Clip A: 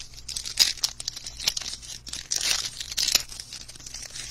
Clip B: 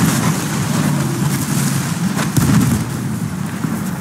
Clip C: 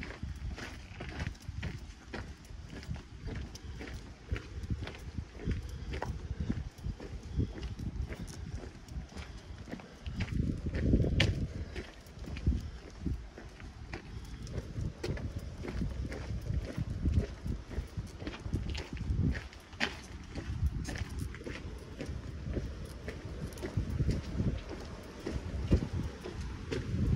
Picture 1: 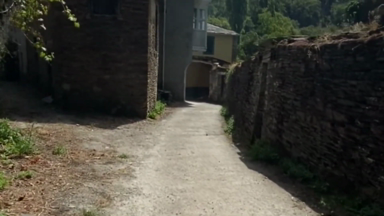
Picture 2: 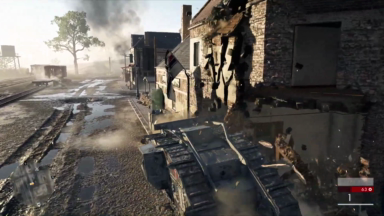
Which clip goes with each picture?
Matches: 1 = C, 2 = B